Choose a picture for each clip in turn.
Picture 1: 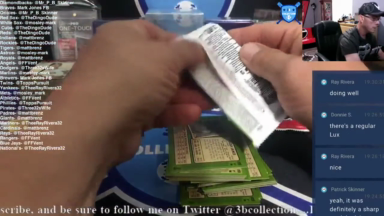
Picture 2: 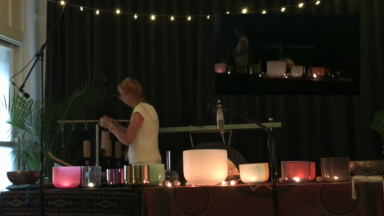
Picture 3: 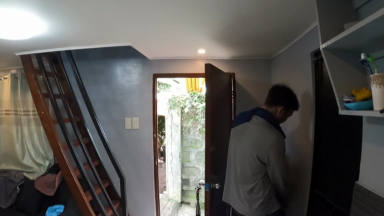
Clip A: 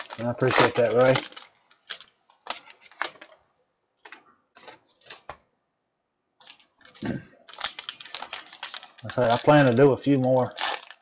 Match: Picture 1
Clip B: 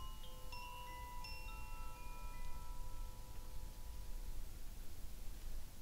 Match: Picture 2